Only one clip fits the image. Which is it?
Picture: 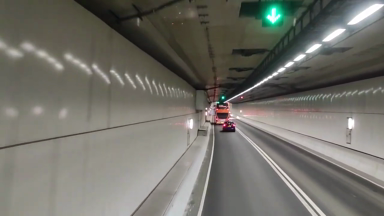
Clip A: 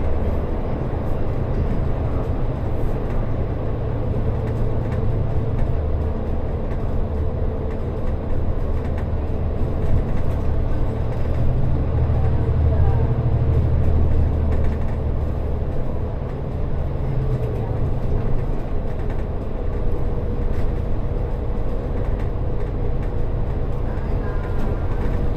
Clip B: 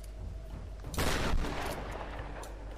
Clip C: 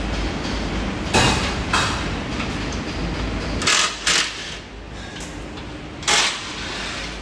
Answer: A